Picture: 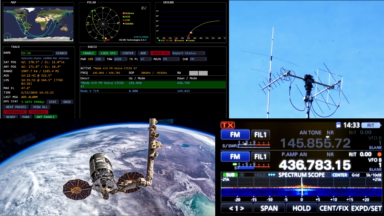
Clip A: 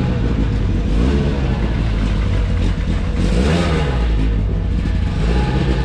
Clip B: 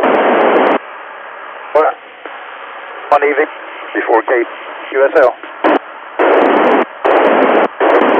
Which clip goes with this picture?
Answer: B